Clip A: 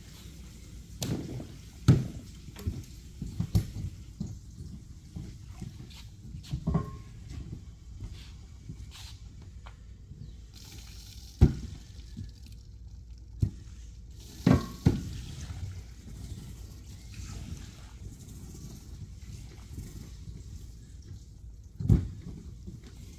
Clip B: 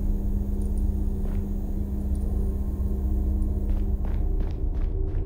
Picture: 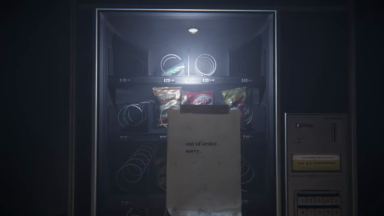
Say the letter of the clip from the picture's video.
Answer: B